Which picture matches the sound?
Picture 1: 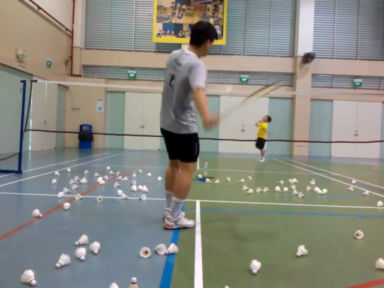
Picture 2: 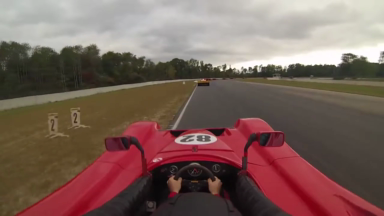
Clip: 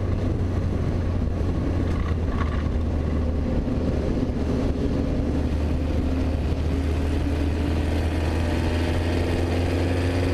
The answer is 2